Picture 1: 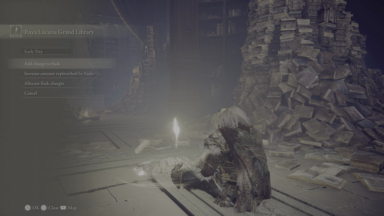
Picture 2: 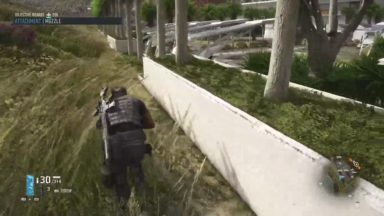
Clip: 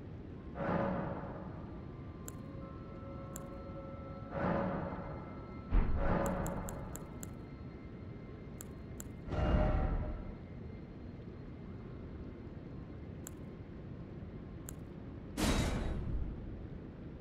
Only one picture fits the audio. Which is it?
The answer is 1